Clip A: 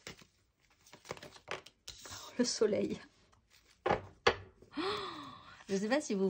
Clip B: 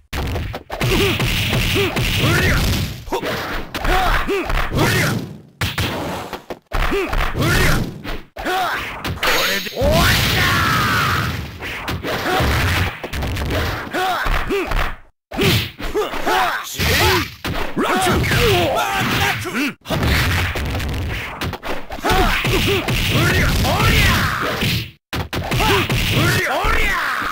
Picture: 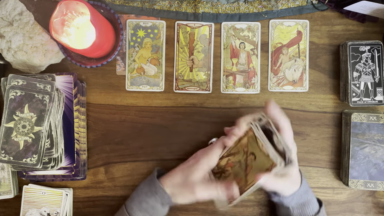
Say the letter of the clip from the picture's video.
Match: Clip A